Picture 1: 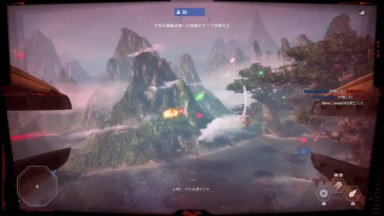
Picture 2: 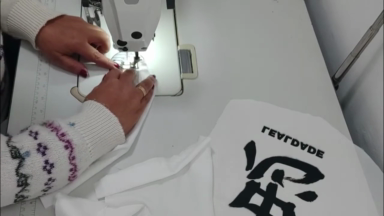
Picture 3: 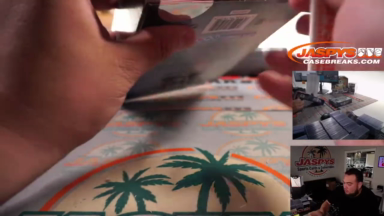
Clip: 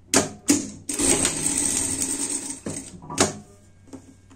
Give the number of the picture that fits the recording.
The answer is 2